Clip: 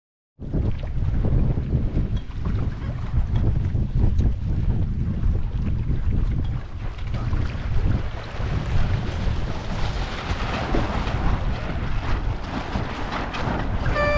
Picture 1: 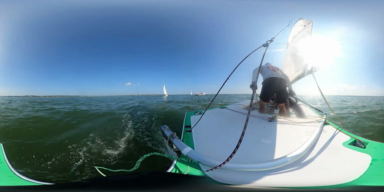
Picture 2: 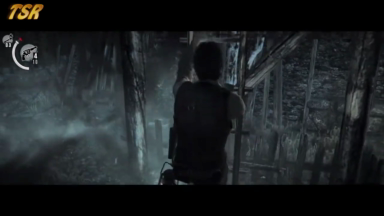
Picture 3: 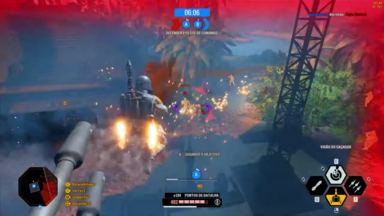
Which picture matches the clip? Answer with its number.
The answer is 1